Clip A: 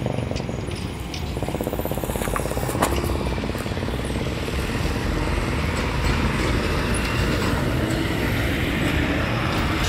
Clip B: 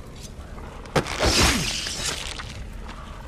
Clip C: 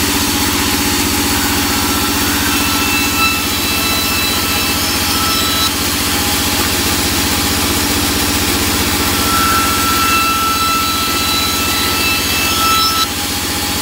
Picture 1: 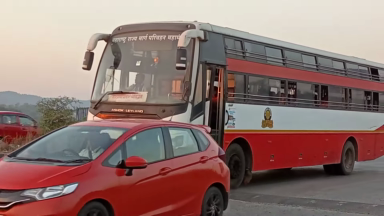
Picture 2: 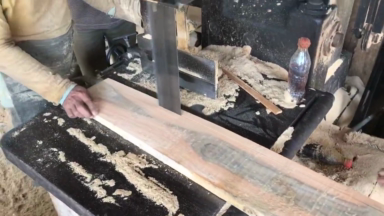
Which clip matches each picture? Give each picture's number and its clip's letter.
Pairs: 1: A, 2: C